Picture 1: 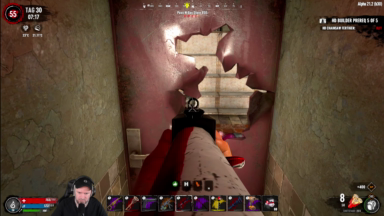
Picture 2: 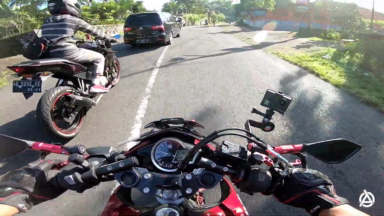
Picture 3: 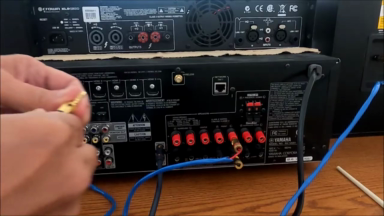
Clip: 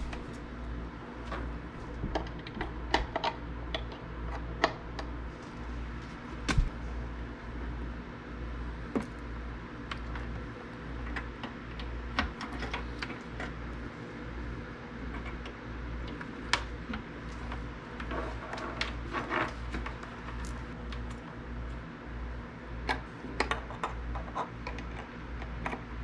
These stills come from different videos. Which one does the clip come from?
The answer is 3